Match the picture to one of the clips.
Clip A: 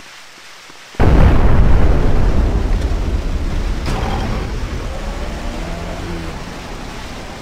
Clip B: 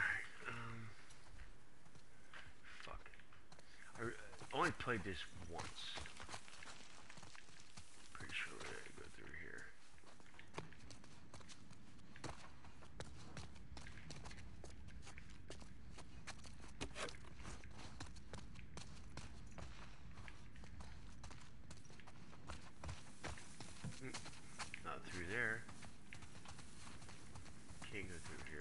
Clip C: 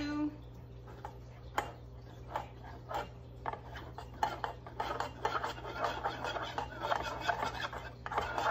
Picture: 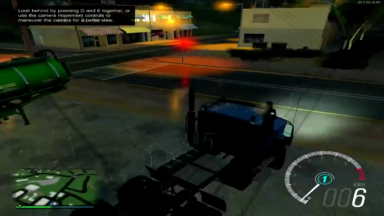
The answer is A